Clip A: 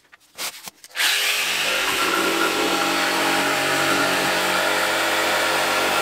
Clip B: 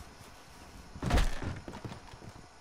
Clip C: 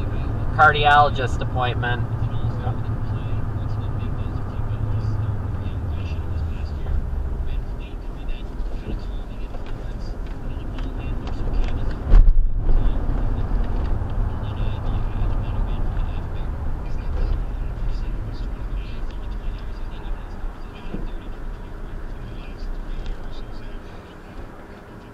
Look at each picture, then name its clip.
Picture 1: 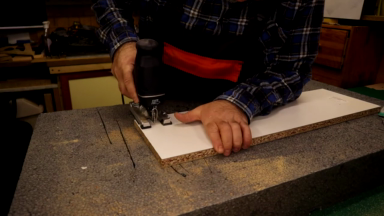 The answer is A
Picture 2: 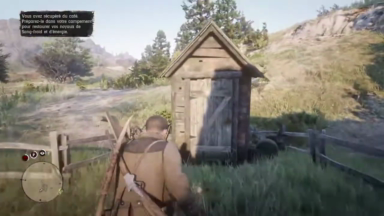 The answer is B